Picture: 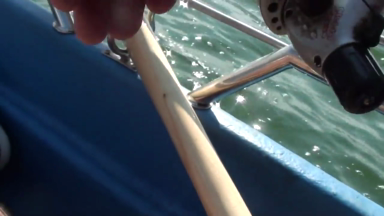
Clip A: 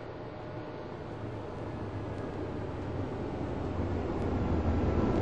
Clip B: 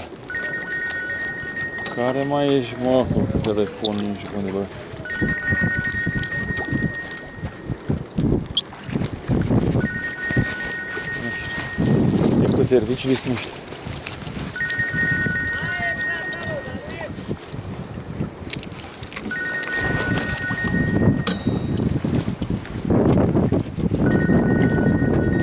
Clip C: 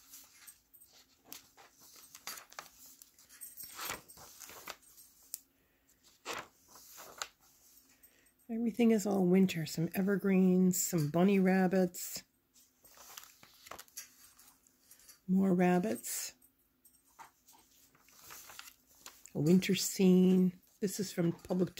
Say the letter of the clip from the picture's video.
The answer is B